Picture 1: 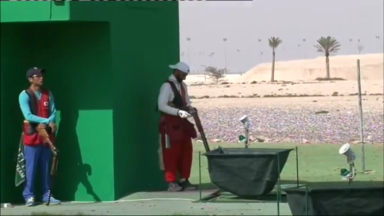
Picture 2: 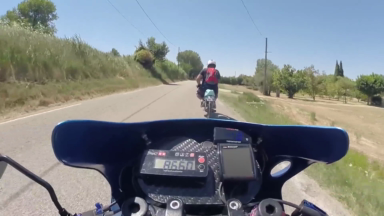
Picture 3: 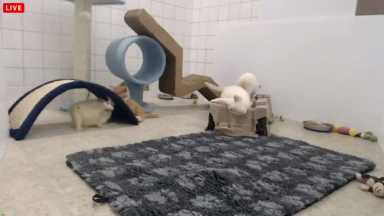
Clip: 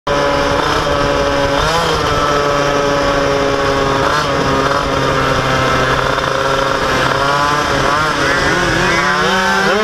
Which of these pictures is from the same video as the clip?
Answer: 2